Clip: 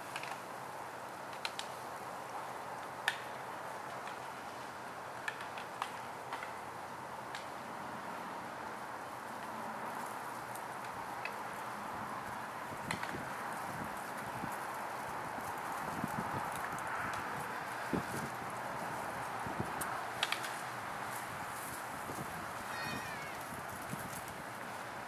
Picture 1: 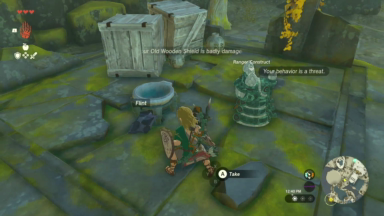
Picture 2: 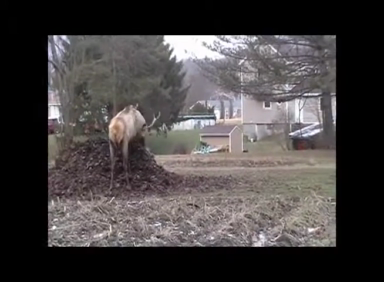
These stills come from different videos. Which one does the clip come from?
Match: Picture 2